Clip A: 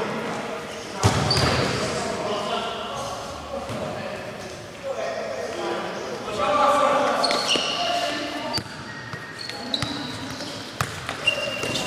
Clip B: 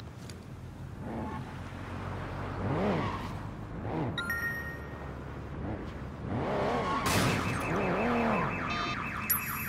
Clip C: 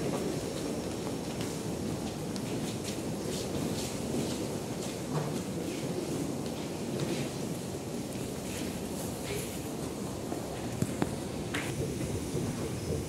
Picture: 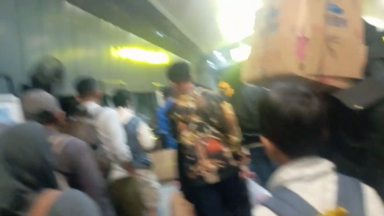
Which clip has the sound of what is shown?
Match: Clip C